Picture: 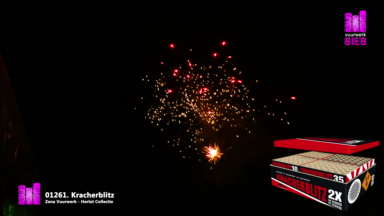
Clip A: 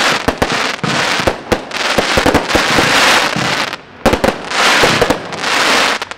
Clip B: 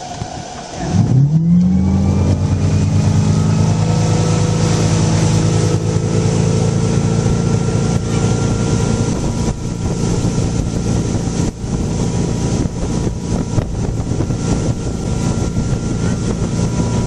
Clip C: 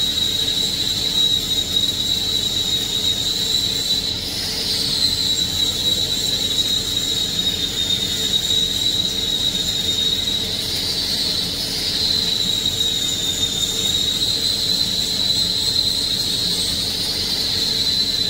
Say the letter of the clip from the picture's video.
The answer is A